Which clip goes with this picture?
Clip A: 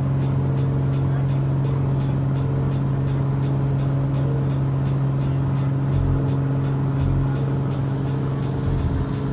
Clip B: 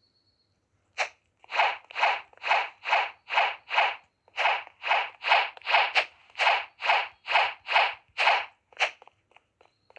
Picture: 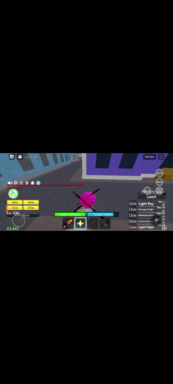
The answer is B